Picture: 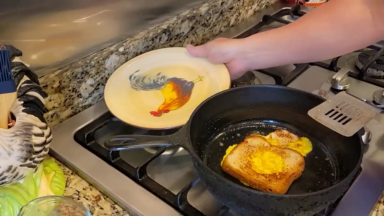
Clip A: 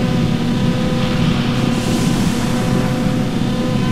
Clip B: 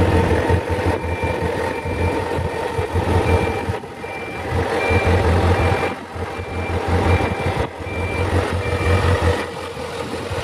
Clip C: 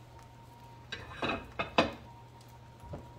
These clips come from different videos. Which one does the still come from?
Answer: C